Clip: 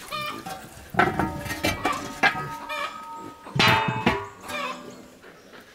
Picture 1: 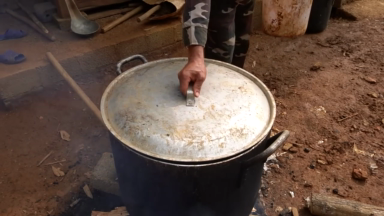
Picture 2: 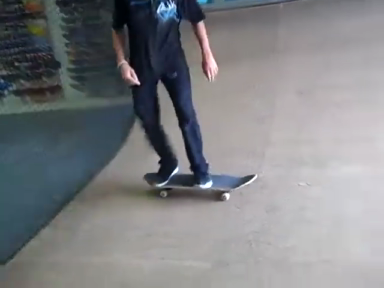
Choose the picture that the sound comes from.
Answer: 1